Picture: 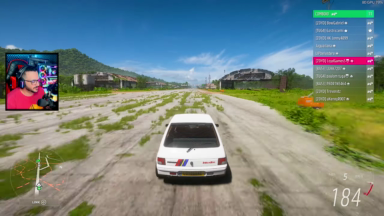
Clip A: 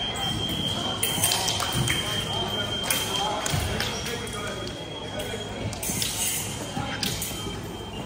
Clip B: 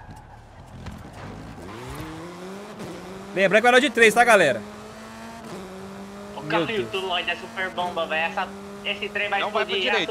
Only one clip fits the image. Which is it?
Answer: B